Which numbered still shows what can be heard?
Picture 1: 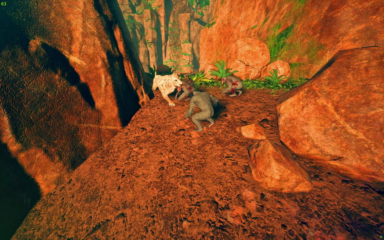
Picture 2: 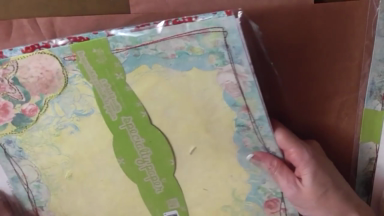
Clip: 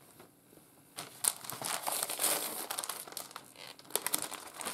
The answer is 2